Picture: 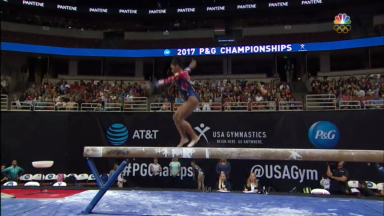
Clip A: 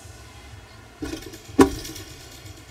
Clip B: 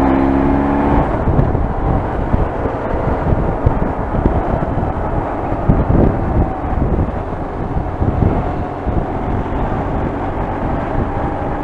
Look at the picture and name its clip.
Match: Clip A